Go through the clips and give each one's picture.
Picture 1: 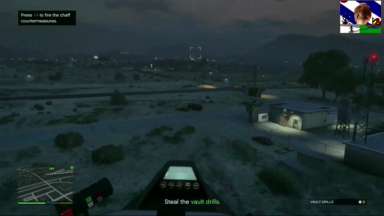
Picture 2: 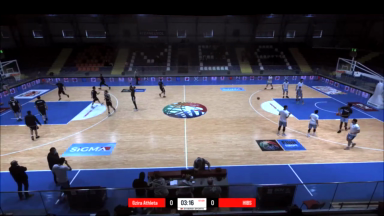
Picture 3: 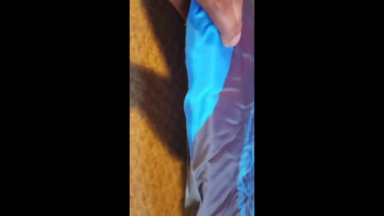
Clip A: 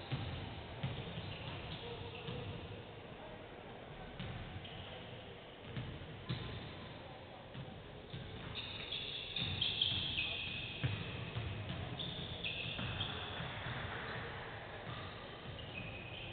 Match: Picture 2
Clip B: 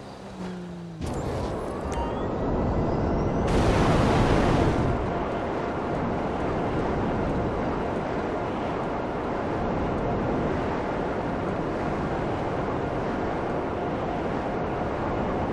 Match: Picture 1